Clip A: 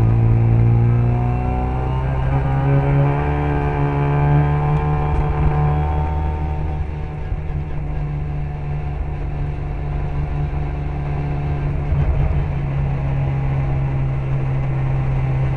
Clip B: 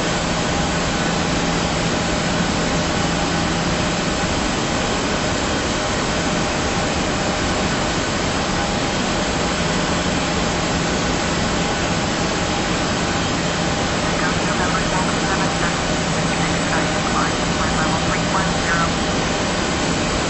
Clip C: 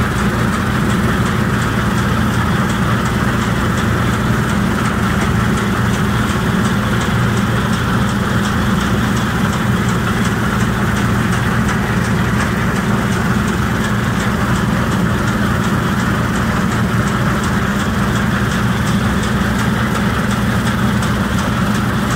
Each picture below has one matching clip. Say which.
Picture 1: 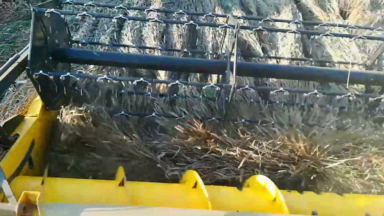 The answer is C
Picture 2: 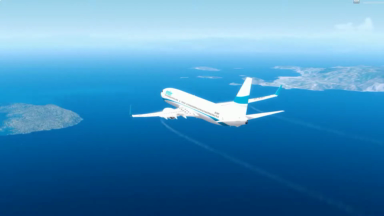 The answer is B